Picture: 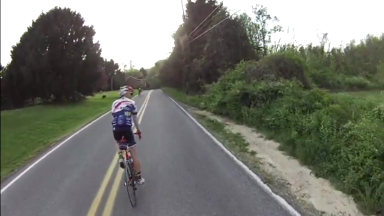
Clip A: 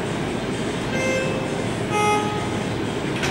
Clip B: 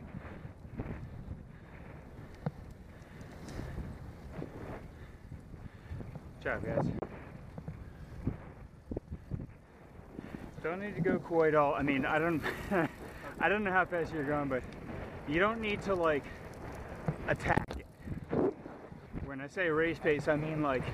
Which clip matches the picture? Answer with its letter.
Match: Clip B